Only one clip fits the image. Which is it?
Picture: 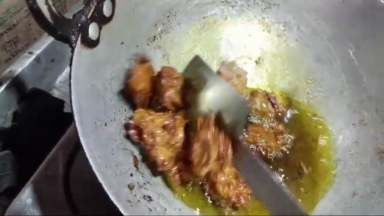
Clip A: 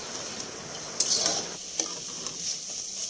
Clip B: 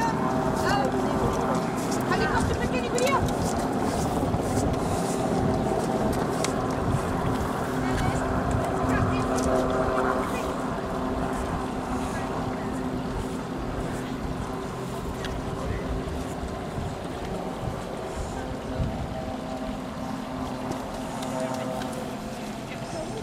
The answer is A